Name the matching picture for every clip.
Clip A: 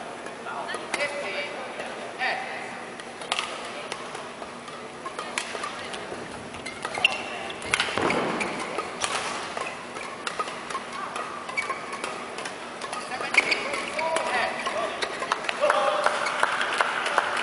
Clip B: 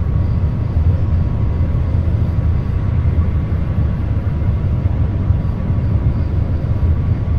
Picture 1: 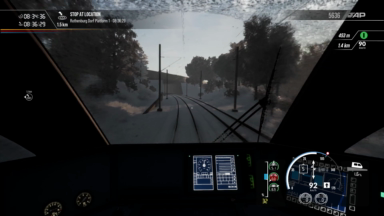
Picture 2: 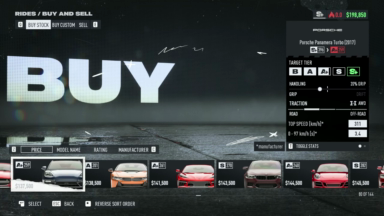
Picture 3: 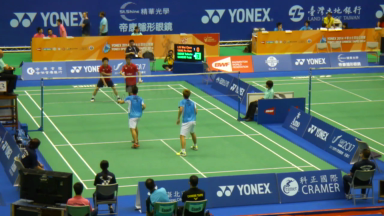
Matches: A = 3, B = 1